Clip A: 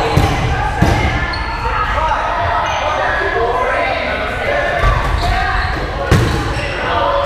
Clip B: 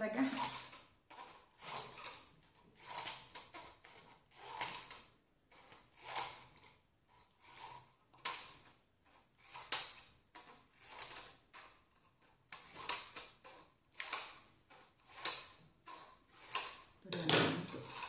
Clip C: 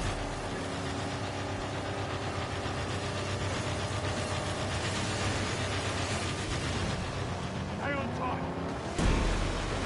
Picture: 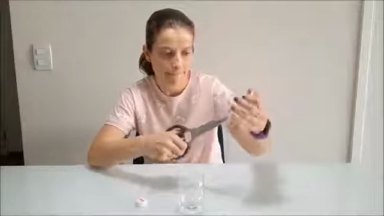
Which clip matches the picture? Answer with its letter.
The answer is B